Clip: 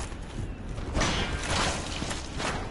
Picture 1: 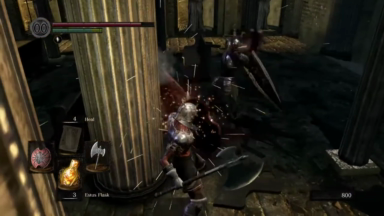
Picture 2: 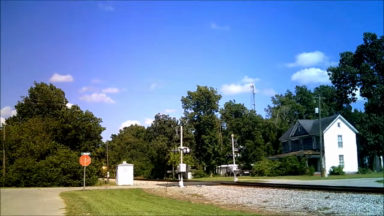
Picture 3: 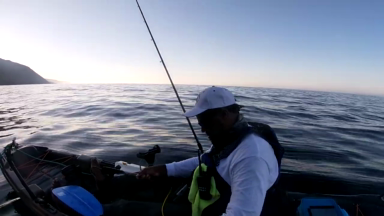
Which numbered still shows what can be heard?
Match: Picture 1